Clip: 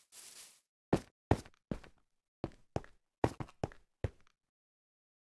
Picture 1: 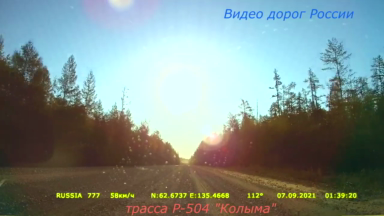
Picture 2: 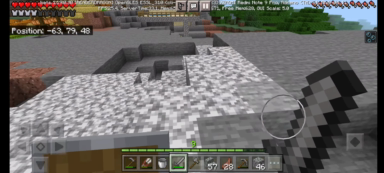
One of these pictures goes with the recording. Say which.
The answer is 2